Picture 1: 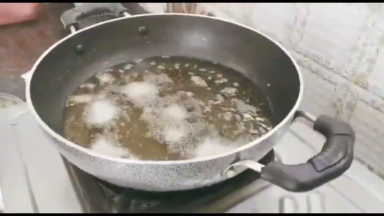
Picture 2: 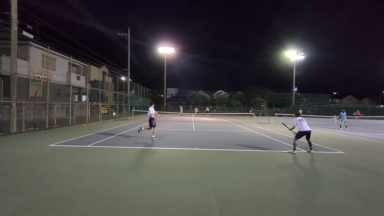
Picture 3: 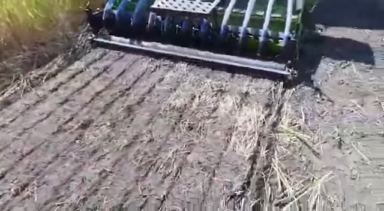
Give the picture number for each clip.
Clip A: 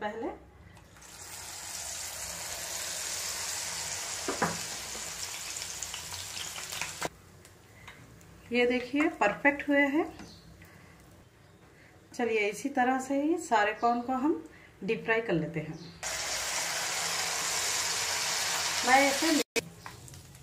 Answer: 1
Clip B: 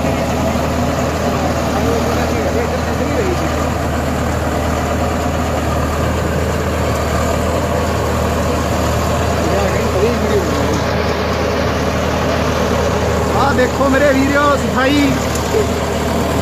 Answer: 3